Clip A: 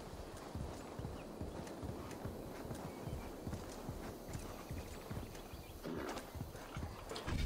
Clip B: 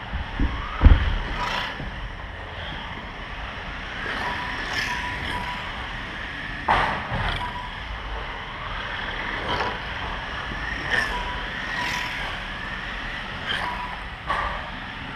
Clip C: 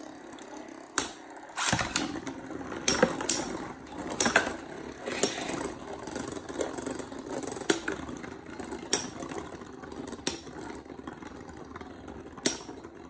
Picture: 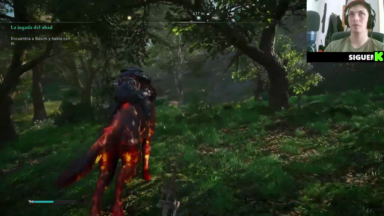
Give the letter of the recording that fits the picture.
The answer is A